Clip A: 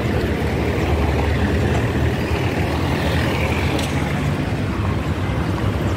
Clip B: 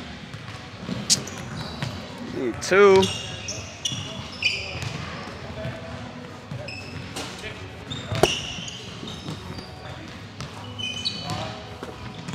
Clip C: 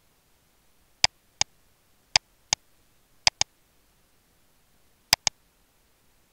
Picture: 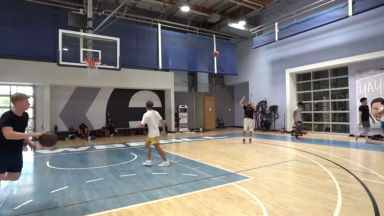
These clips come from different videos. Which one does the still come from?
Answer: B